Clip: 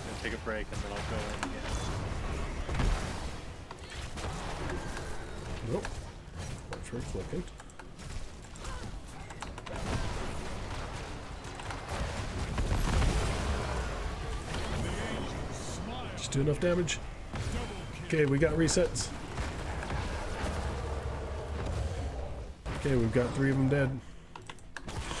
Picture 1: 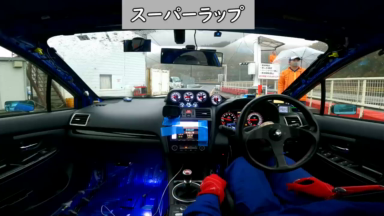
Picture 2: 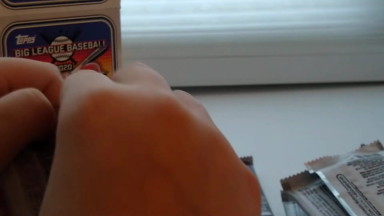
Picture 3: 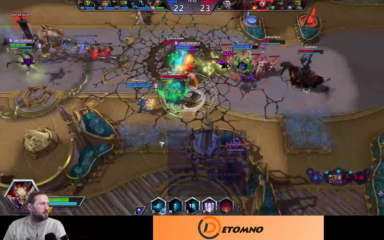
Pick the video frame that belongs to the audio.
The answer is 3